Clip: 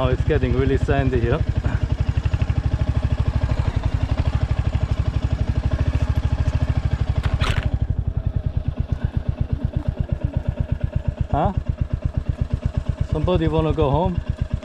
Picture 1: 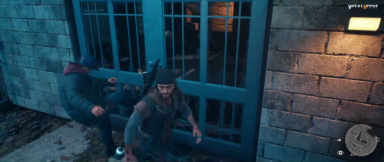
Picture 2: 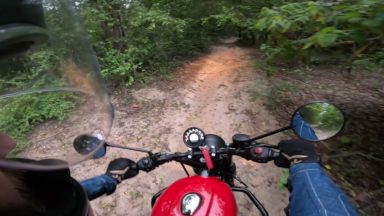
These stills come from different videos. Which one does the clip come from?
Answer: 2